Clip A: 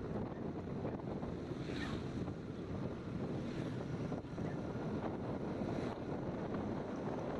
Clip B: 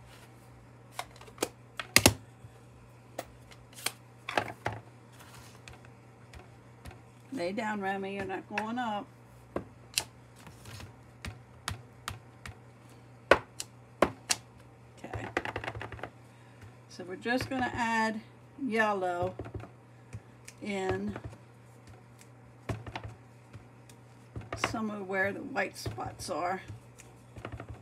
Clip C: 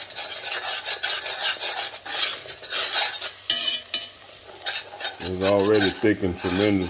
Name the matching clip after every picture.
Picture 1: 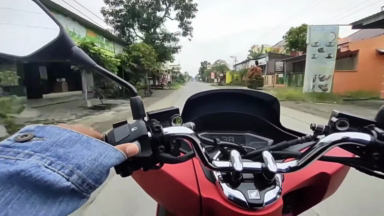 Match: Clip A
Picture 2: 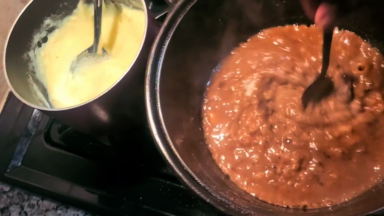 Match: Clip C